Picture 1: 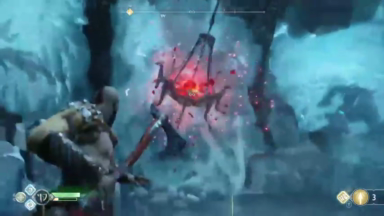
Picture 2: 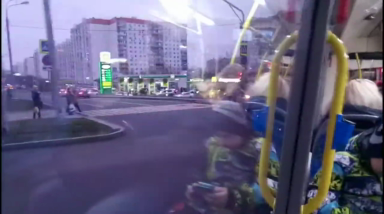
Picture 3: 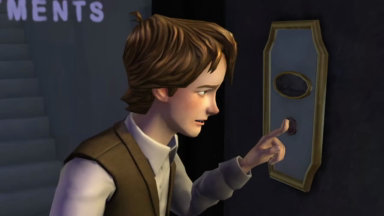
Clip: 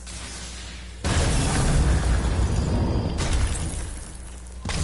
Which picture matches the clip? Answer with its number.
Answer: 1